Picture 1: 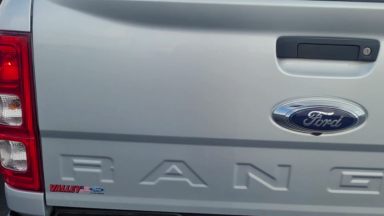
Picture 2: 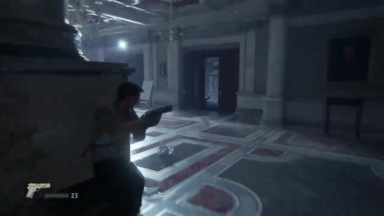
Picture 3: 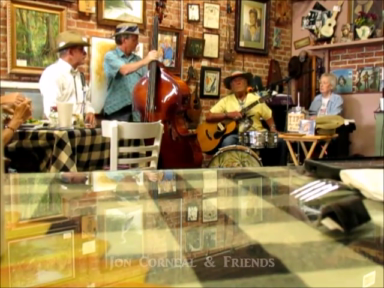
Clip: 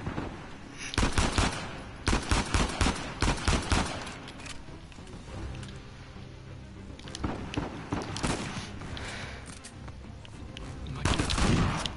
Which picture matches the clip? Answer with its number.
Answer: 2